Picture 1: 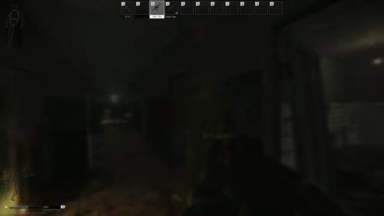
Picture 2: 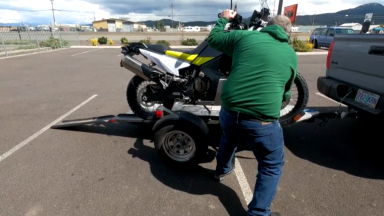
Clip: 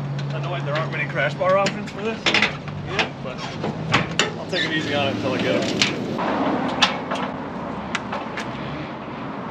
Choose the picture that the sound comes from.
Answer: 2